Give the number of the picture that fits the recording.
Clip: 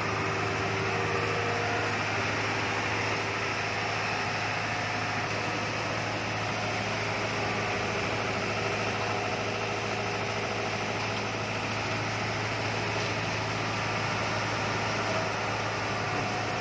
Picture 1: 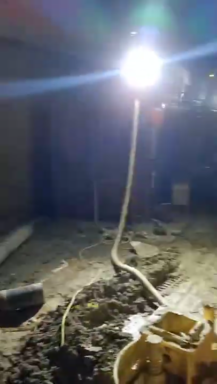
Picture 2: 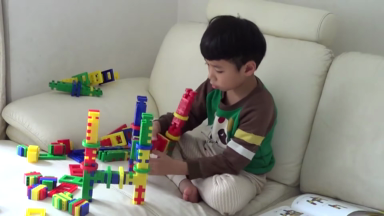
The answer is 1